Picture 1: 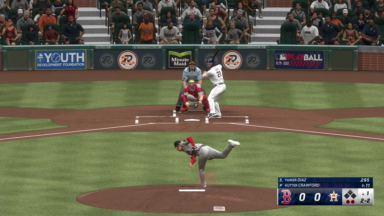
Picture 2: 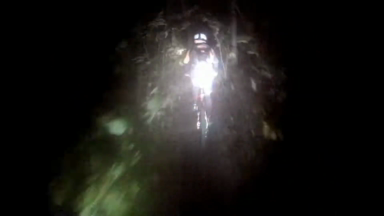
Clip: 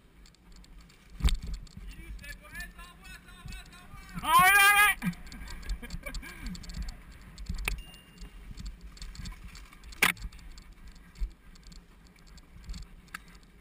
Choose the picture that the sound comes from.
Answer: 2